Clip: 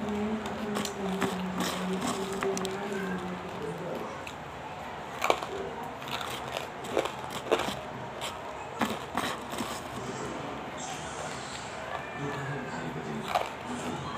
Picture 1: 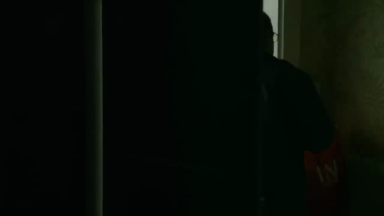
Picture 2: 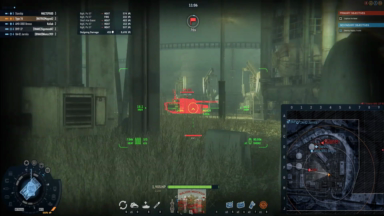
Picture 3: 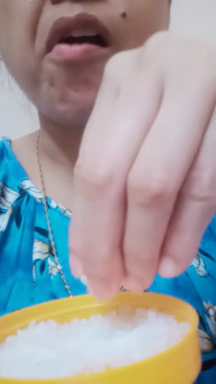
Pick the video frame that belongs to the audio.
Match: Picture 3